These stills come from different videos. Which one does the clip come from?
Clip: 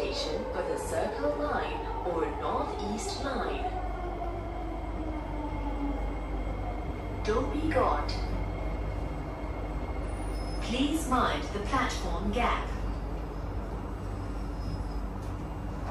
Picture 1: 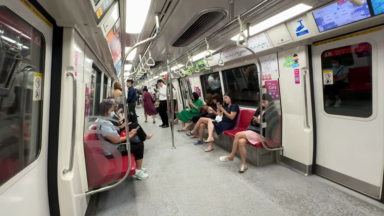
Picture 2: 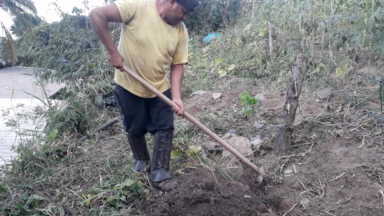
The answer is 1